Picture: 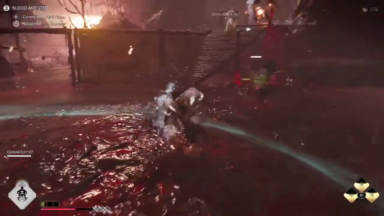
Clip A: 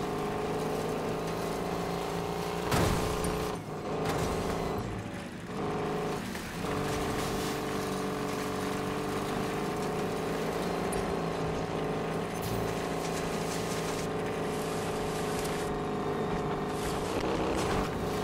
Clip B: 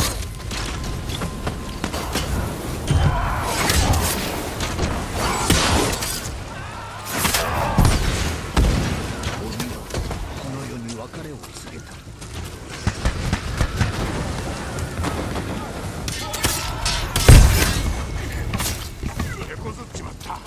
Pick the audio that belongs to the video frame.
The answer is B